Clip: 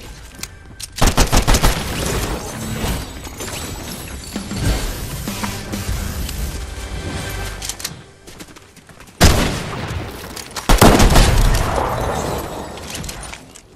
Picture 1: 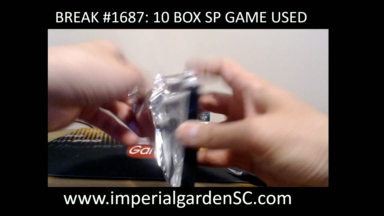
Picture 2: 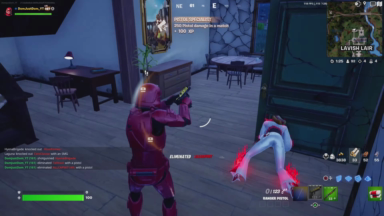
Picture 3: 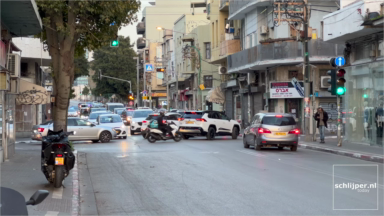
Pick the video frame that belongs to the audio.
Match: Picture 2